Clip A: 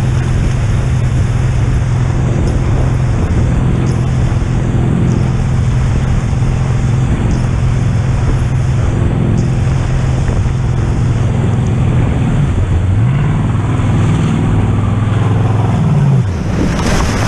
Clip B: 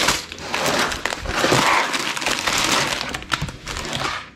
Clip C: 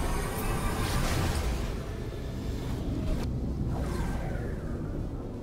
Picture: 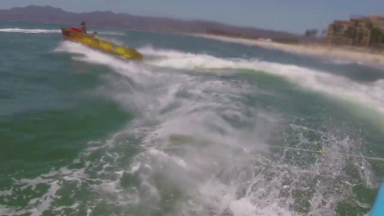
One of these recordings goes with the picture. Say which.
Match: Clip A